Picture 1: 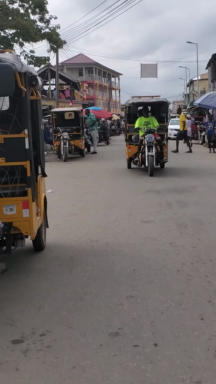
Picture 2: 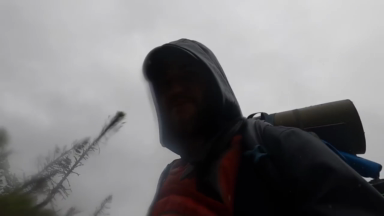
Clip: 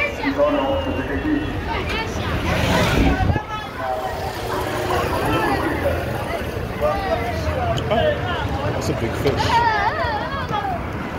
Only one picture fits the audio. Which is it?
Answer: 1